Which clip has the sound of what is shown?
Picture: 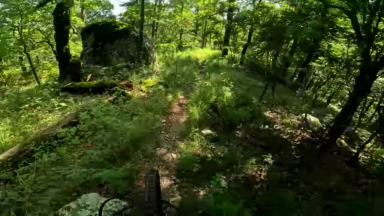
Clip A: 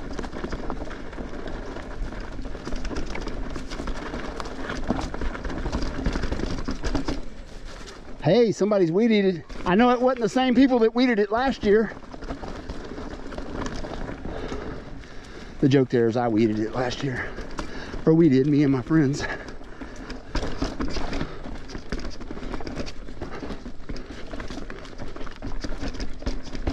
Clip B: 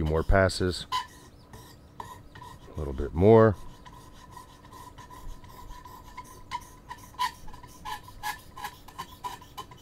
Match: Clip A